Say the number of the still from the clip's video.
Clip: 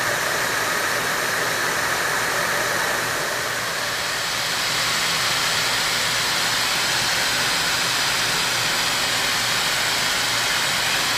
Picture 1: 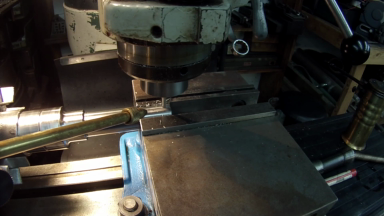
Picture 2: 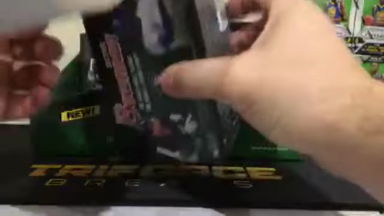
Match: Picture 1